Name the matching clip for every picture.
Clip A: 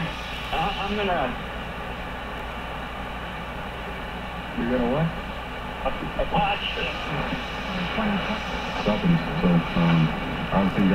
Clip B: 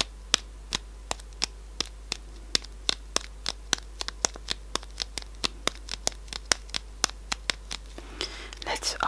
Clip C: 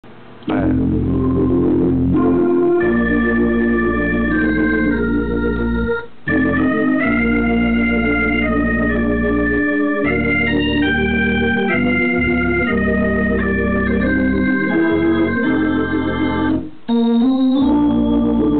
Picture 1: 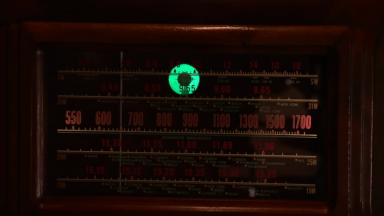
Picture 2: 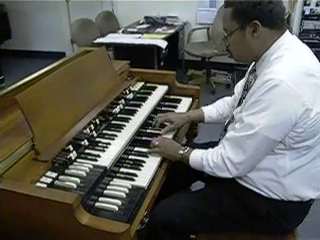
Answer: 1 A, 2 C